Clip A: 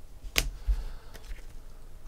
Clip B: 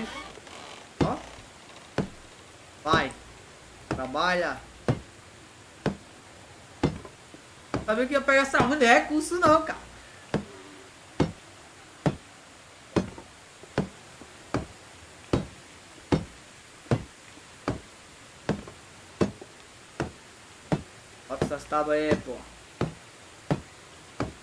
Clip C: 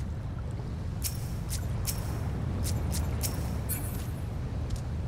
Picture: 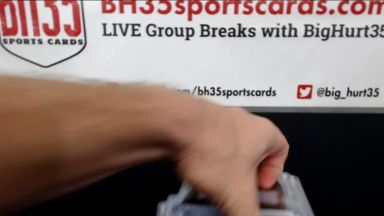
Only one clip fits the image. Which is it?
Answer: A